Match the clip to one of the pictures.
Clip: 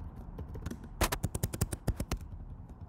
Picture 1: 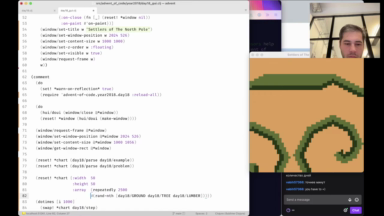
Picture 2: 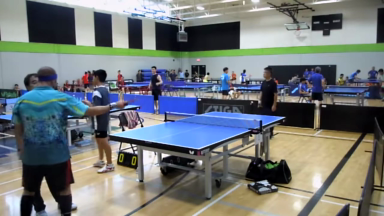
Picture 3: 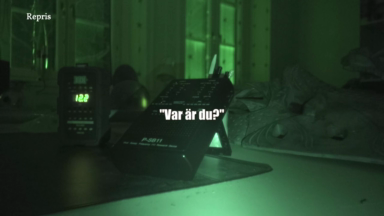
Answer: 1